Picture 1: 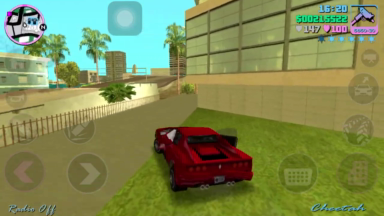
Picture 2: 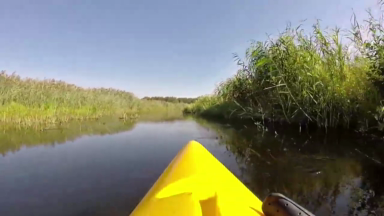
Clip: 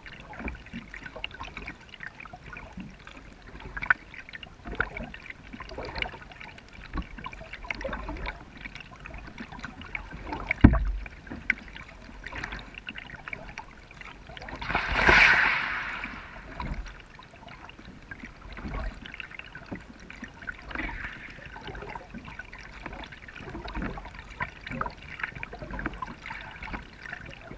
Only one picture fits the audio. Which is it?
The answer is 2